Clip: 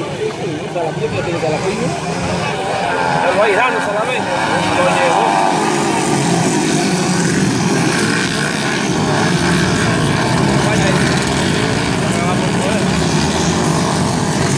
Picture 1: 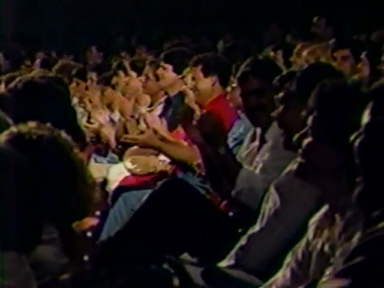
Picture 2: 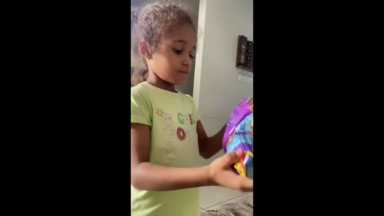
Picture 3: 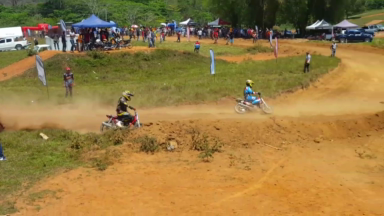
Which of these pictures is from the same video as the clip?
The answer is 3